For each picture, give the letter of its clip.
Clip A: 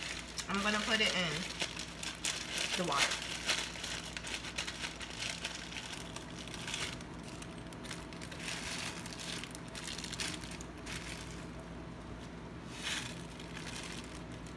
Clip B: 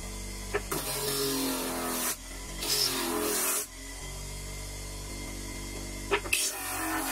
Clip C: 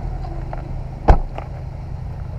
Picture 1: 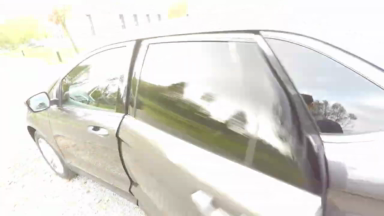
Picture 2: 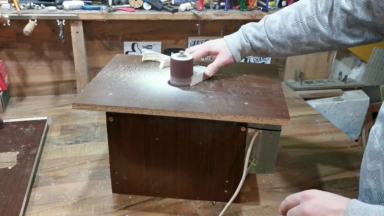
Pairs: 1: C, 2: B